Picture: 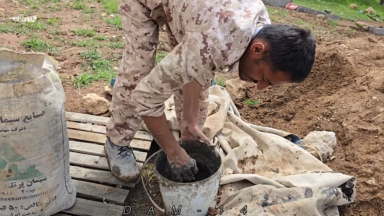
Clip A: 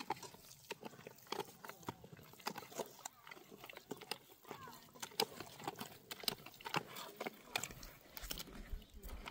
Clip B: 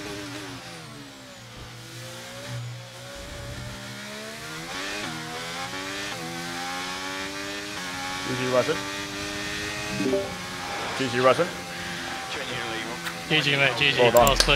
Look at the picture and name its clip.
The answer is A